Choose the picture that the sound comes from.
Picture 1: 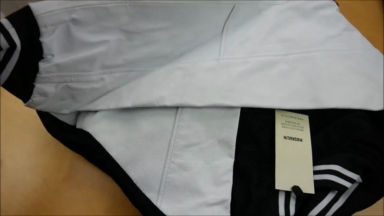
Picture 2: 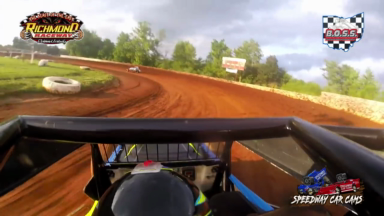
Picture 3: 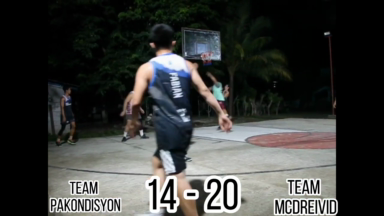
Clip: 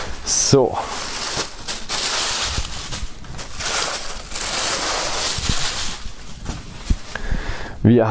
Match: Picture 1